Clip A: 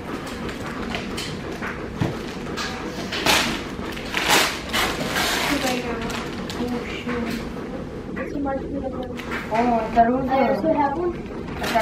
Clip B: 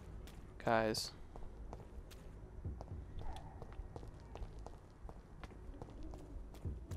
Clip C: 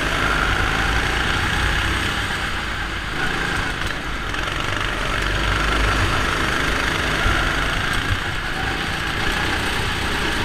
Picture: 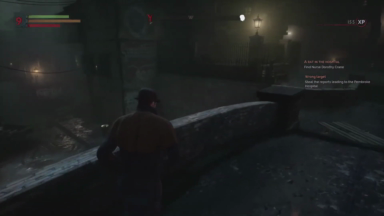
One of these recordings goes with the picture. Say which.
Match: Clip B